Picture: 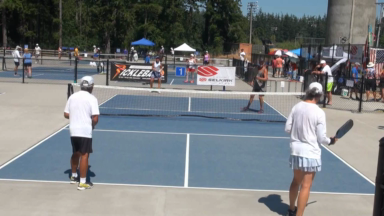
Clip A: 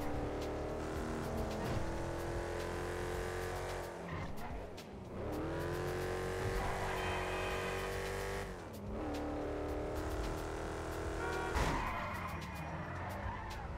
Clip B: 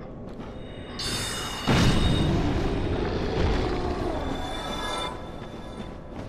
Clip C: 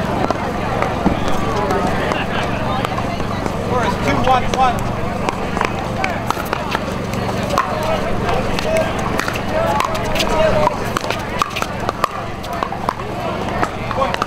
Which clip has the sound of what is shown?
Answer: C